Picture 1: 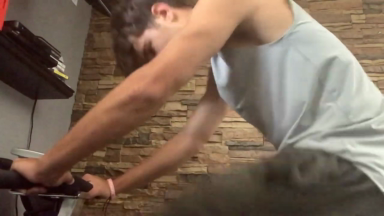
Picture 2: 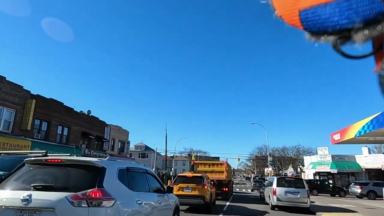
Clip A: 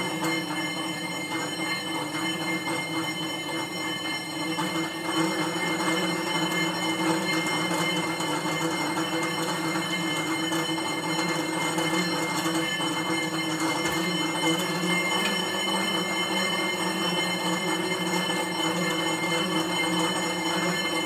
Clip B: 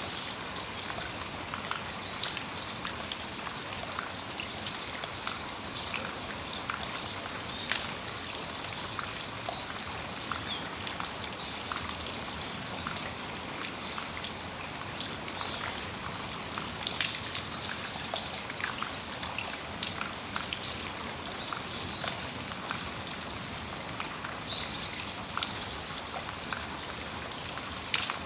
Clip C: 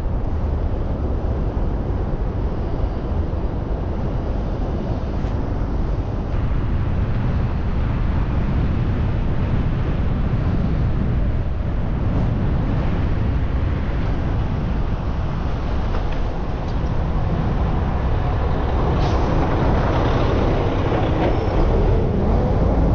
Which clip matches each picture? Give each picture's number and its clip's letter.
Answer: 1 A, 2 C